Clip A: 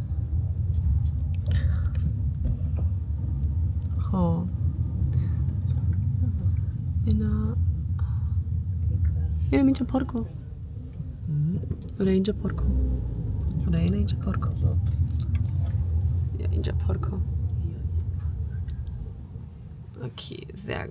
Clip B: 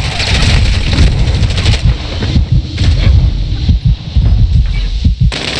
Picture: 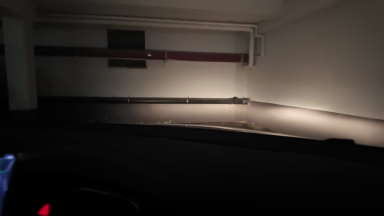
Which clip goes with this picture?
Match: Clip A